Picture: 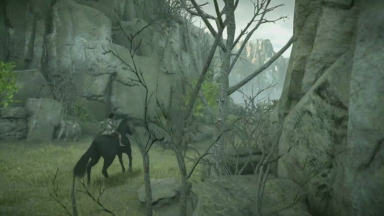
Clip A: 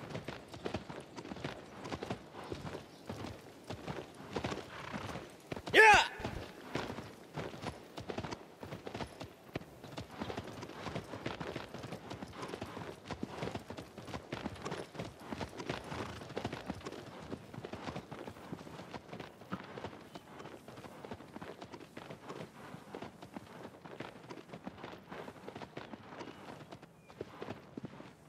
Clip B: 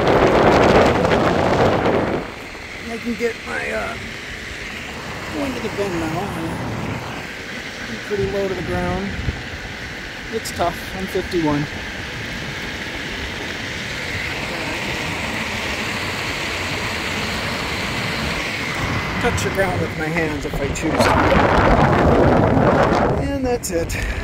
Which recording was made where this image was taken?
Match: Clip A